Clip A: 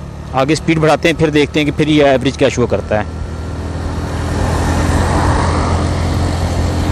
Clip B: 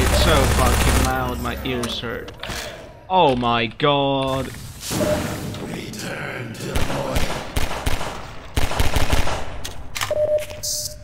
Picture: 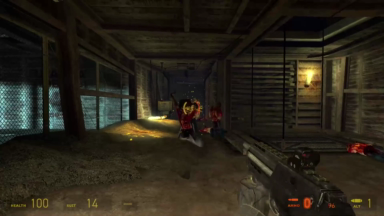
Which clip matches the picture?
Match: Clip B